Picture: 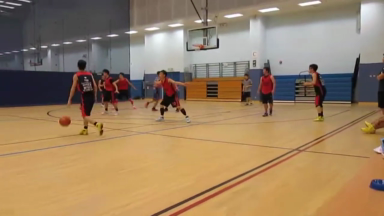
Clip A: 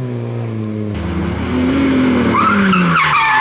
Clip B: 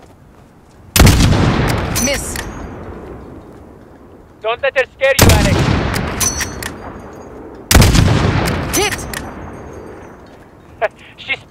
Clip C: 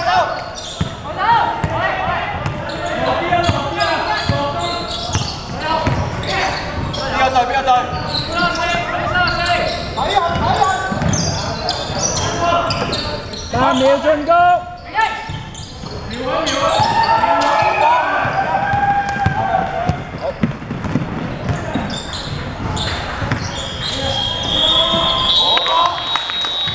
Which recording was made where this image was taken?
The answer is C